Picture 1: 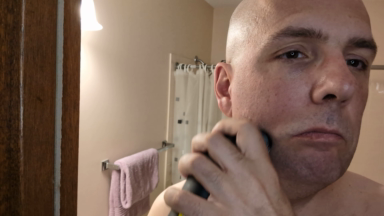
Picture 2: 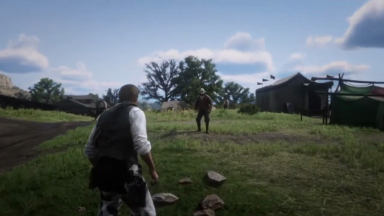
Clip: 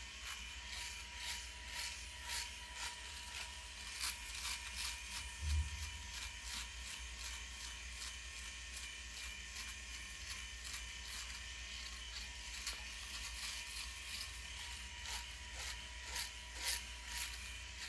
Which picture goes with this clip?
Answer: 1